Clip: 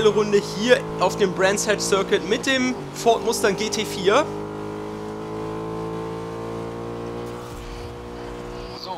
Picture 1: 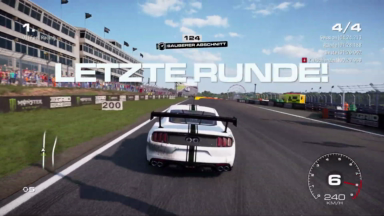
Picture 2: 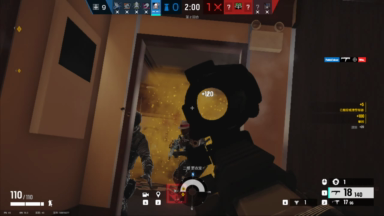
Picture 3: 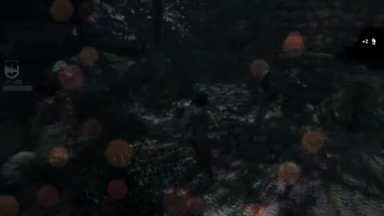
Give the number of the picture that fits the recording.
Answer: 1